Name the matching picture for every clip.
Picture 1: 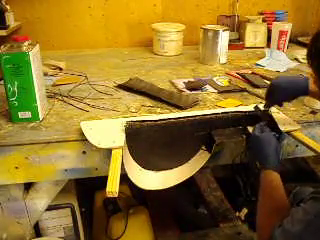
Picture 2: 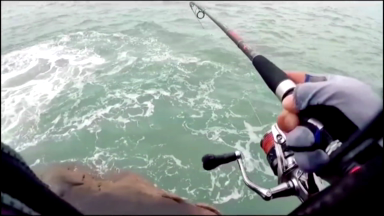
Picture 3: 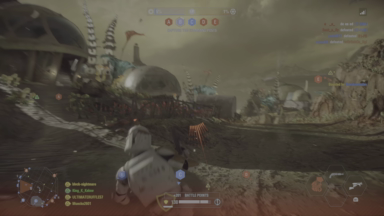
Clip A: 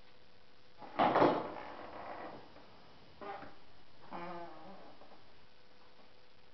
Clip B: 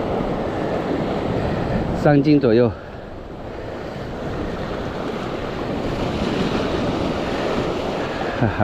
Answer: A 1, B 2